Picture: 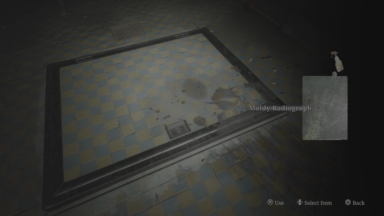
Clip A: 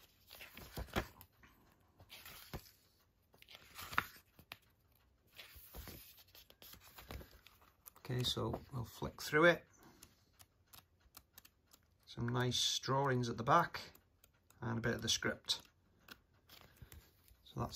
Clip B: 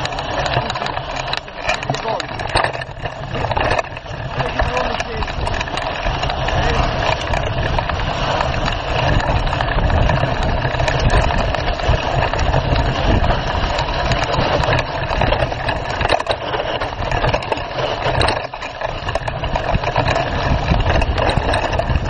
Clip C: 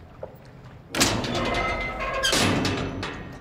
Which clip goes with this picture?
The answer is C